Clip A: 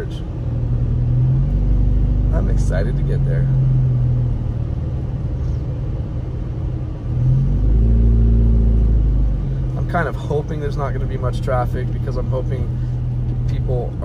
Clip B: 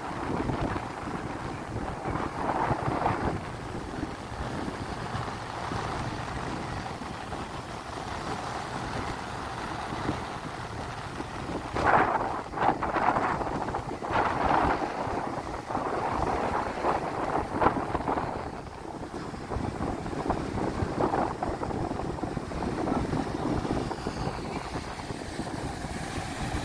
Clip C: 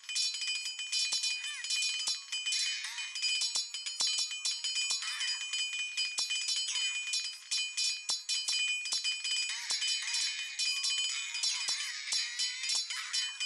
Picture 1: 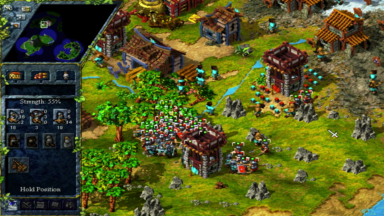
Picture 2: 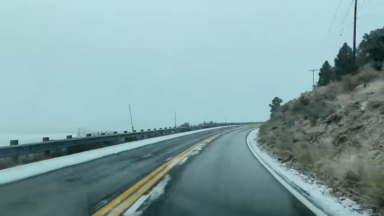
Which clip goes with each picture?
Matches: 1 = C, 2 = A